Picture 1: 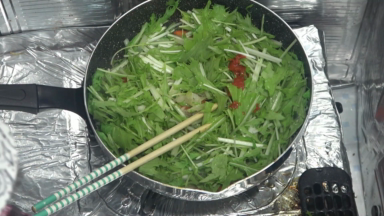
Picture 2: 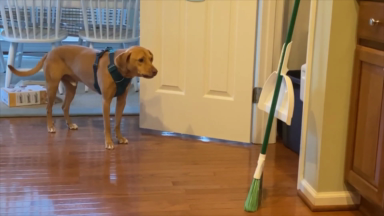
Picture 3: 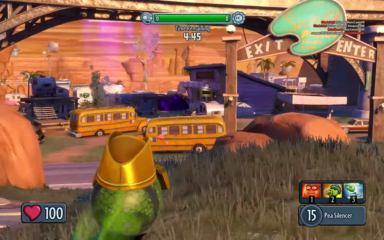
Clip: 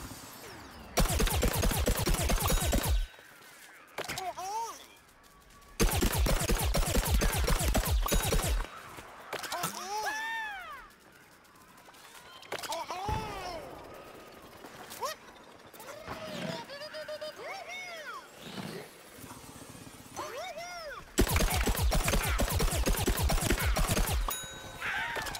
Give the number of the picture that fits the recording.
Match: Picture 3